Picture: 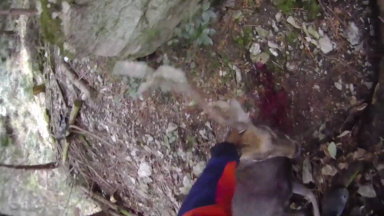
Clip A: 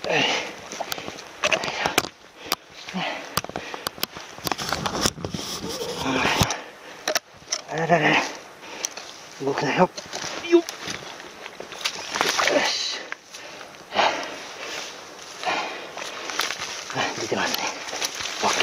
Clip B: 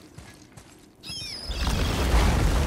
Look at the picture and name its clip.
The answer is A